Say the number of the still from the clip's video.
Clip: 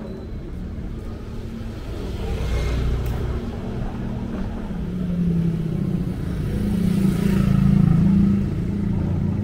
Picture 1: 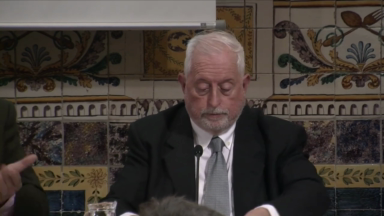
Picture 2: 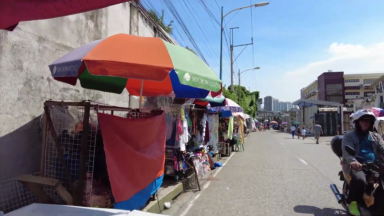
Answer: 2